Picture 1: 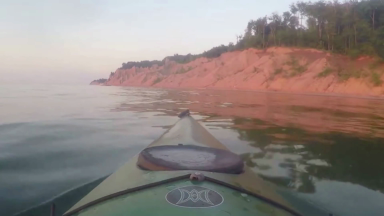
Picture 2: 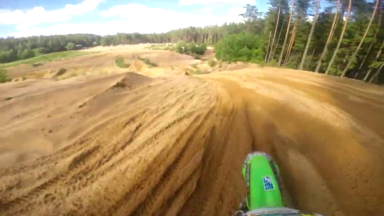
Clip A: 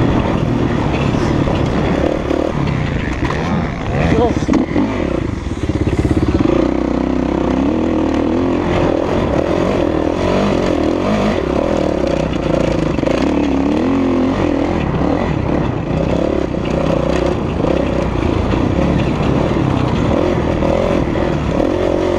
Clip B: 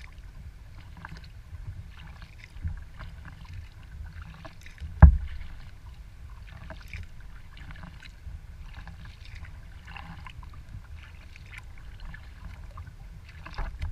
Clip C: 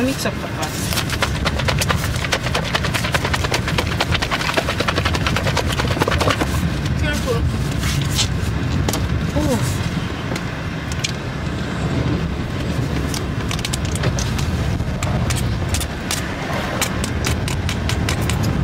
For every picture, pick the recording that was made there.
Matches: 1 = B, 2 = A